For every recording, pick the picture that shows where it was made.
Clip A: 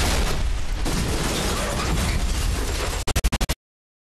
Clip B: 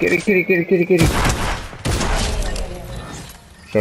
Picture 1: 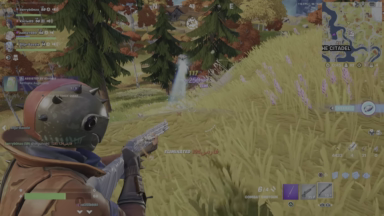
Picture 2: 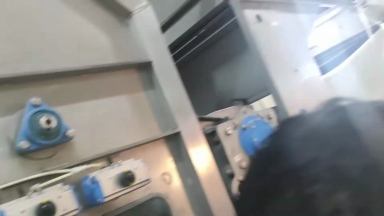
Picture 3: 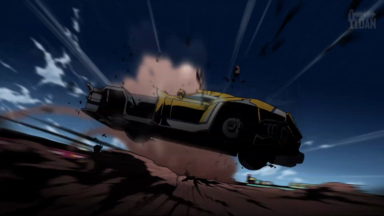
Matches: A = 3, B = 1